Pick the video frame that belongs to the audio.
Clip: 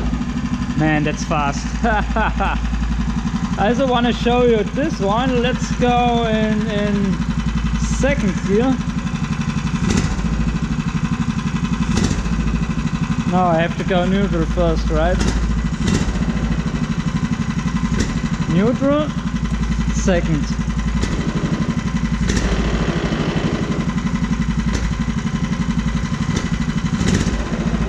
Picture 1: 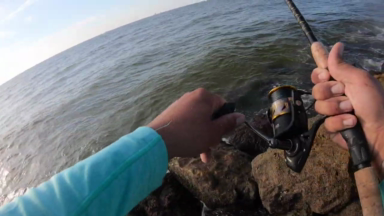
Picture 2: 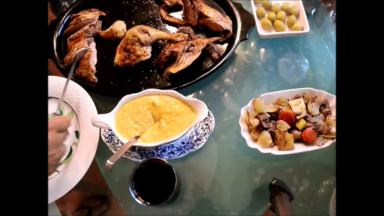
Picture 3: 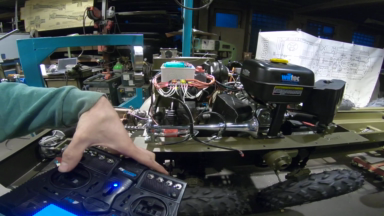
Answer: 3